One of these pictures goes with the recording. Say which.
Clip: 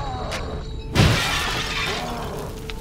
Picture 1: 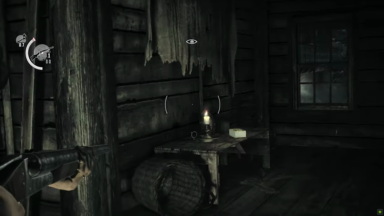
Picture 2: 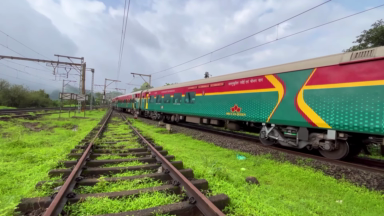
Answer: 1